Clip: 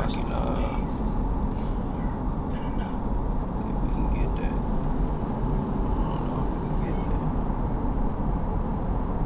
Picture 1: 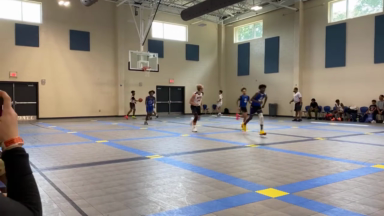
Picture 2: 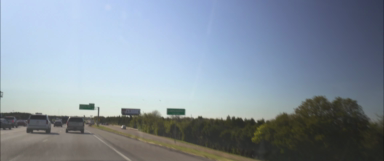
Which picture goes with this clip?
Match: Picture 2